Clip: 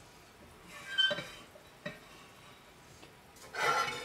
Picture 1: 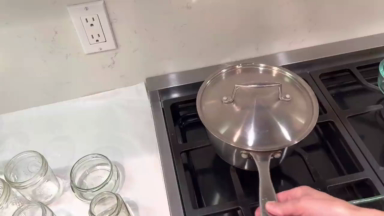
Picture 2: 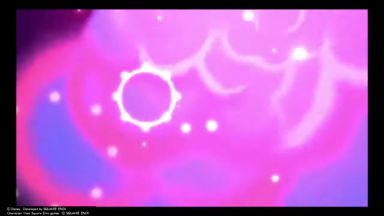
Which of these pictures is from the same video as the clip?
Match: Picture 1